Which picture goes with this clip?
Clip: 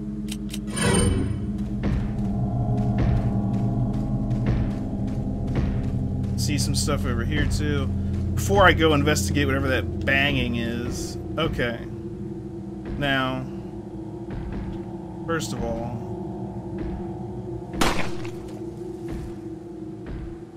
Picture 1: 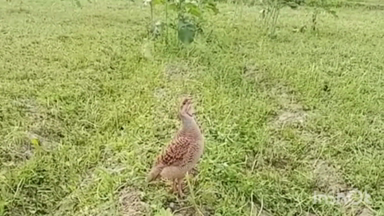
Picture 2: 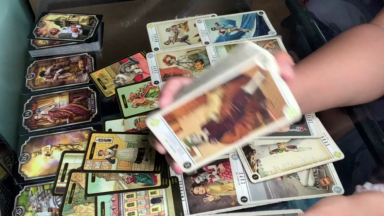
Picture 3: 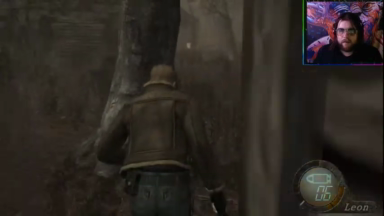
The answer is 3